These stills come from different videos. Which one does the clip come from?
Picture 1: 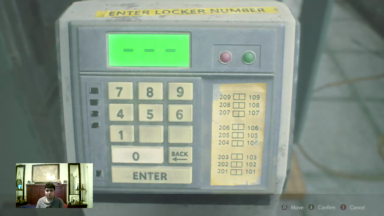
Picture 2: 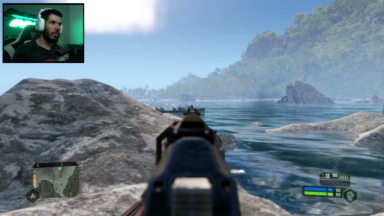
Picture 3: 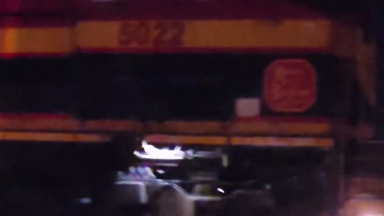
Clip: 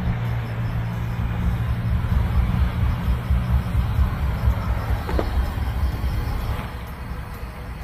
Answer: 3